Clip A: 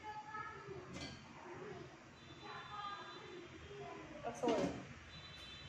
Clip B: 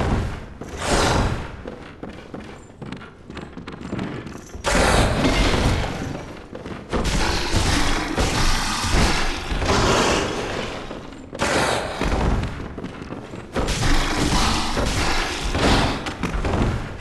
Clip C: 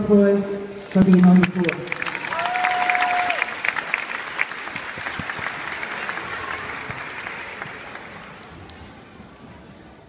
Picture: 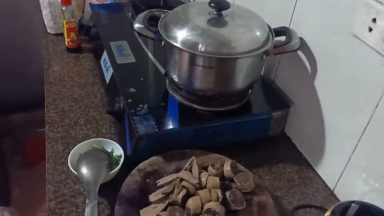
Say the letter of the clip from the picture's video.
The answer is A